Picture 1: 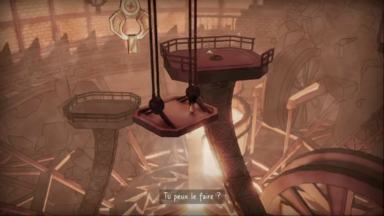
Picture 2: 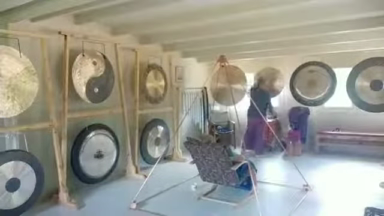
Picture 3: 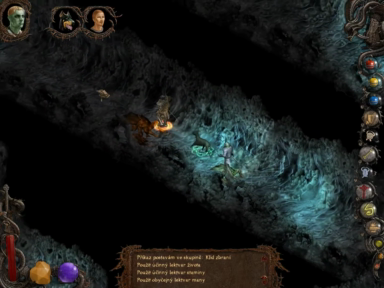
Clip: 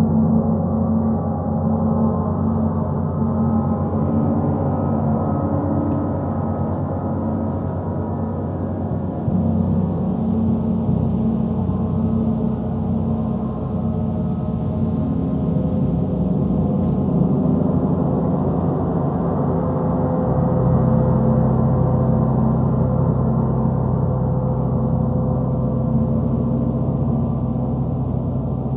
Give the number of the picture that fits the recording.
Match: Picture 2